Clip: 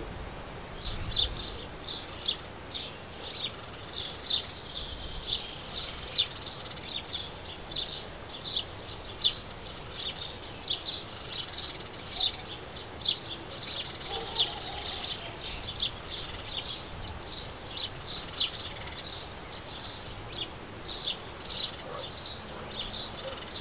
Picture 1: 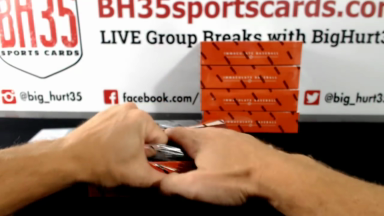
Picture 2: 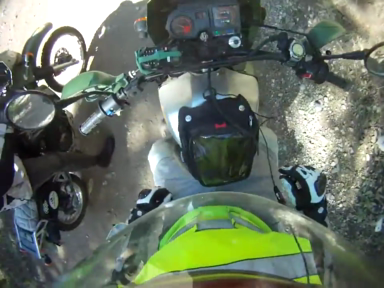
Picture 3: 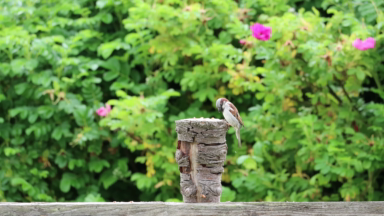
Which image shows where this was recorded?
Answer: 3